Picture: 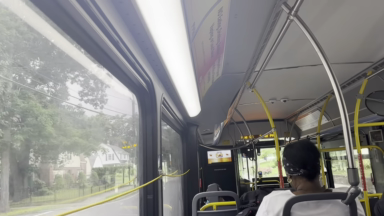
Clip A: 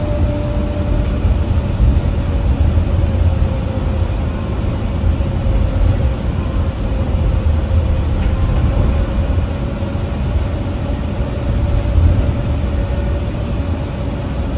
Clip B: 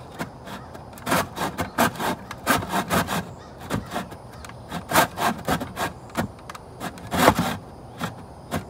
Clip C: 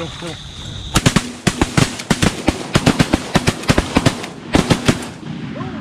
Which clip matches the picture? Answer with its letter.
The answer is A